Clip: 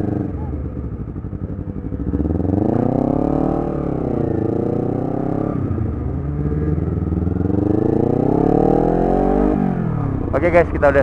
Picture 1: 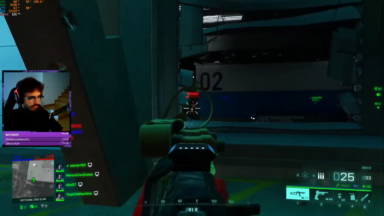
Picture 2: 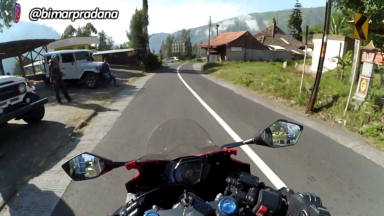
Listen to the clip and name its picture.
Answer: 2